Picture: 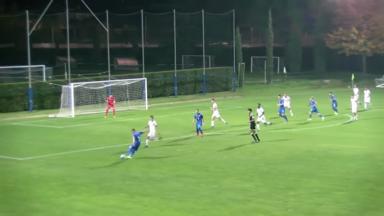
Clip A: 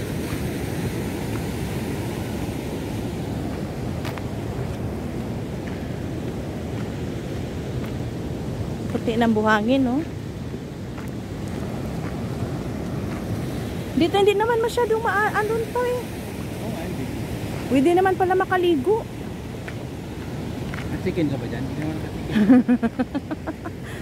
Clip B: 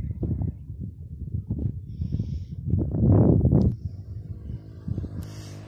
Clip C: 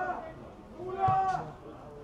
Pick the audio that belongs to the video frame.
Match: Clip C